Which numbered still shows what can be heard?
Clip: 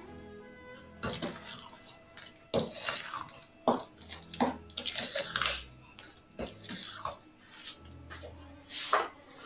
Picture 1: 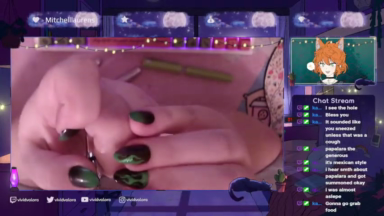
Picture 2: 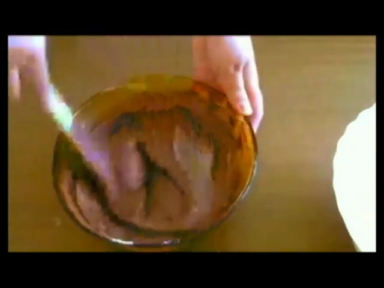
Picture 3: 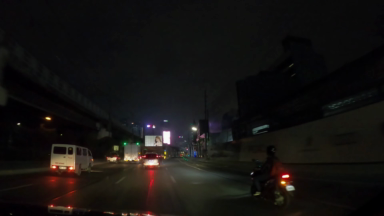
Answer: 2